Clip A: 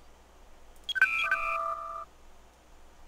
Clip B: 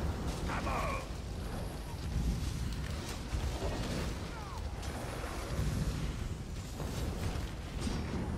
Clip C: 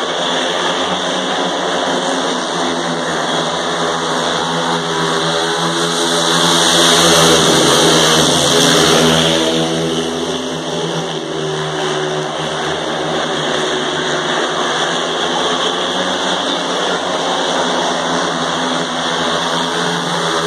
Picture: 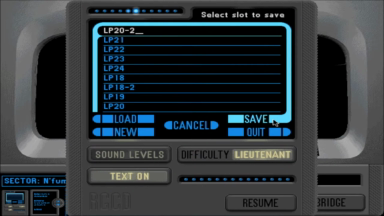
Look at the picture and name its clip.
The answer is A